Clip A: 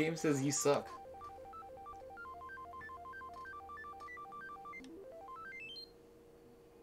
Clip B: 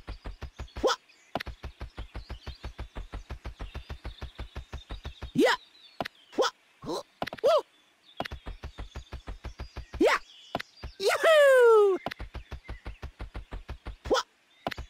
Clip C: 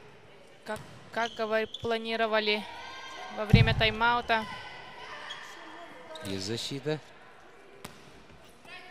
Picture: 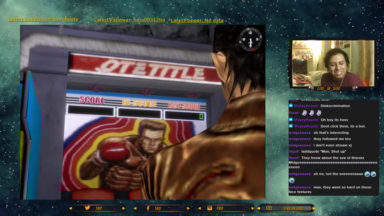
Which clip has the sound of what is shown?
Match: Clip A